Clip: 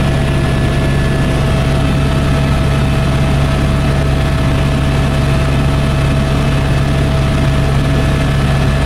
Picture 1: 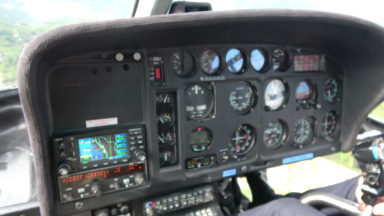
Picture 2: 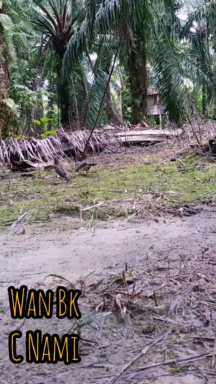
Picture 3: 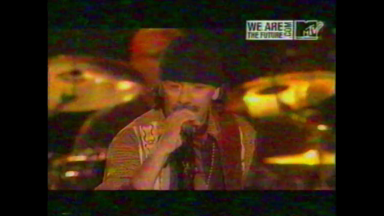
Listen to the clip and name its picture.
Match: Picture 1